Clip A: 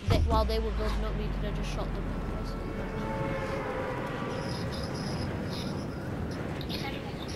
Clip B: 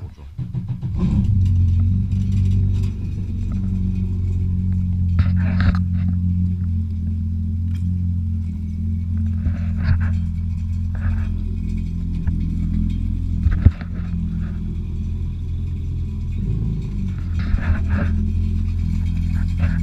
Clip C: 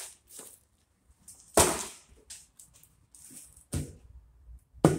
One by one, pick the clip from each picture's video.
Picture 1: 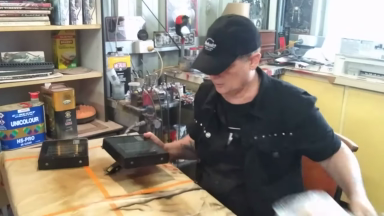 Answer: C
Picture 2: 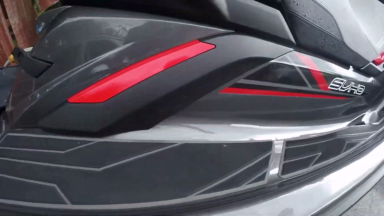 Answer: B